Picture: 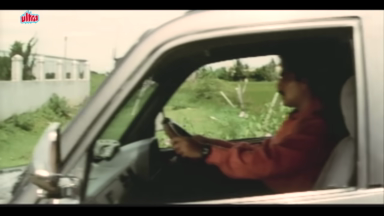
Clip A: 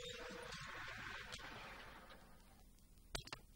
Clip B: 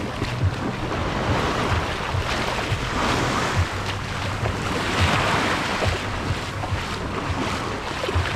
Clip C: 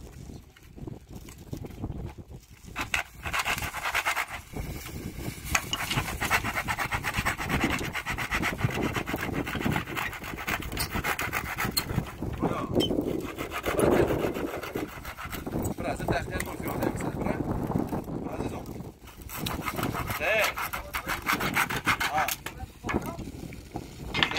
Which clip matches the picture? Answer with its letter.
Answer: A